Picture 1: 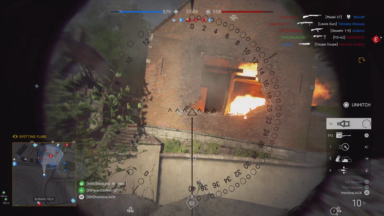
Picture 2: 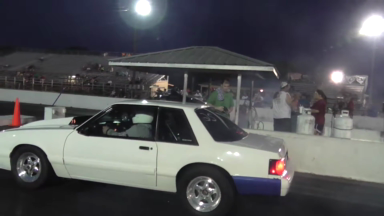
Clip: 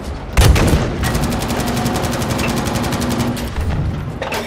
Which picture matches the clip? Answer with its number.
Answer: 1